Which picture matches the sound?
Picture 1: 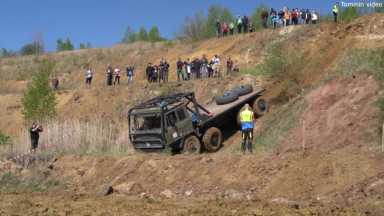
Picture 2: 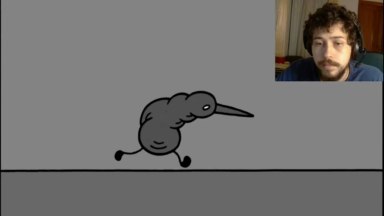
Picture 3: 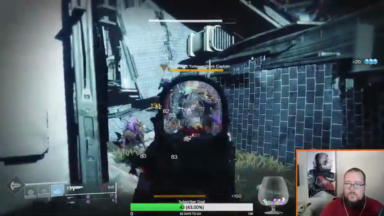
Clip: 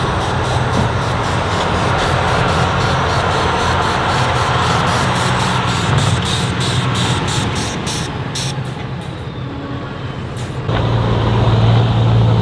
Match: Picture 1